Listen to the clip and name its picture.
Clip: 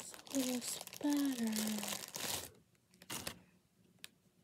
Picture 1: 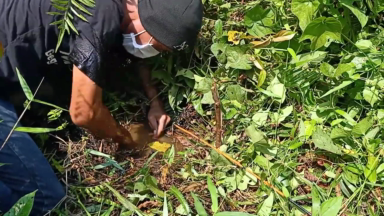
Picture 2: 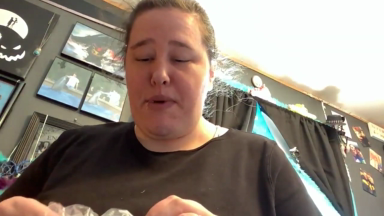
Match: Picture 2